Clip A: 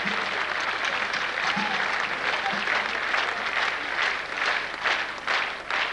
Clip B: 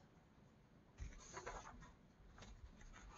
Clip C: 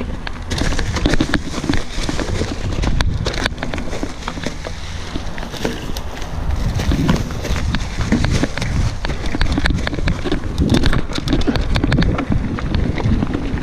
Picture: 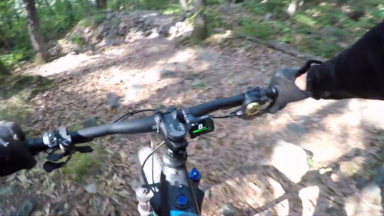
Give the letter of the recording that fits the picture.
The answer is C